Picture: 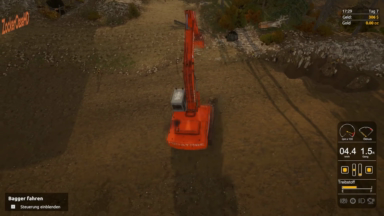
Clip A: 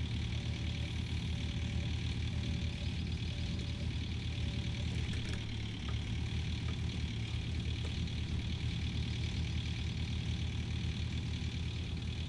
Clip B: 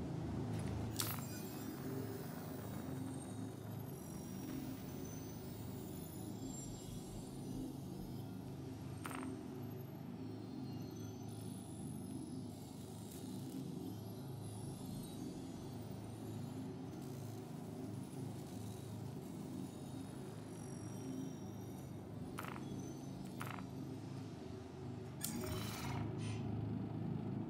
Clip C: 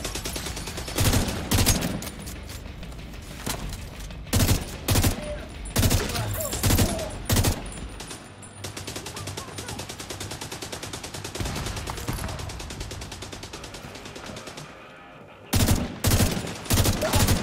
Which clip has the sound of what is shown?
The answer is A